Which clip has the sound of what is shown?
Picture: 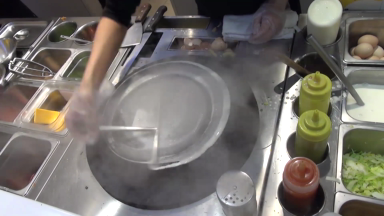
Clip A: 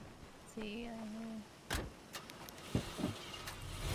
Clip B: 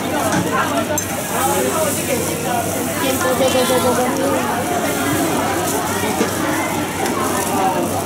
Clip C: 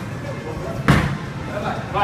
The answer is B